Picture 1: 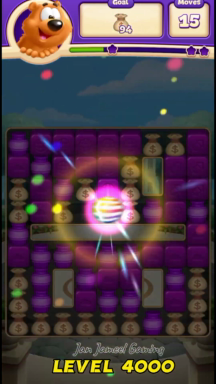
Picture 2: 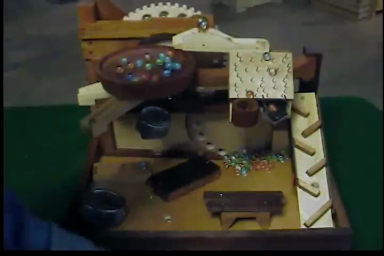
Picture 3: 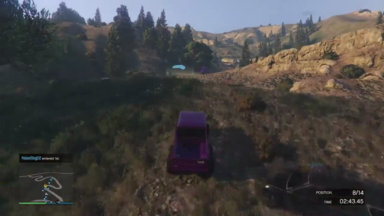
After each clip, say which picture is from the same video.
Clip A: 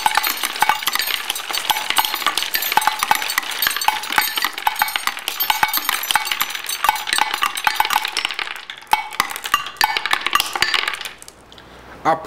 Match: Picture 2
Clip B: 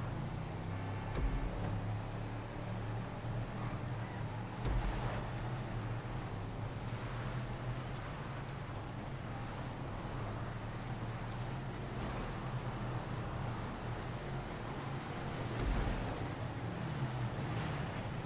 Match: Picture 3